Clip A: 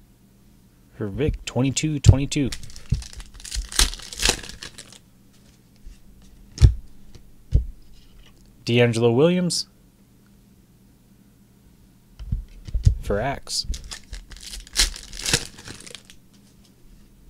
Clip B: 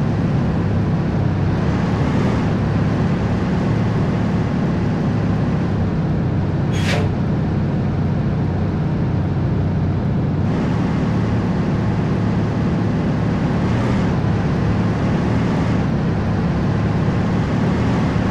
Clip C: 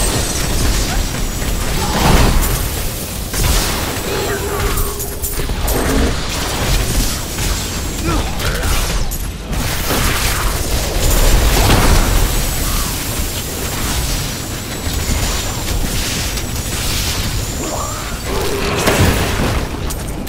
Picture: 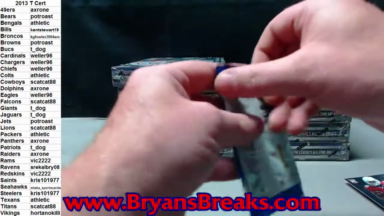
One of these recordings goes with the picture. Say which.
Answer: A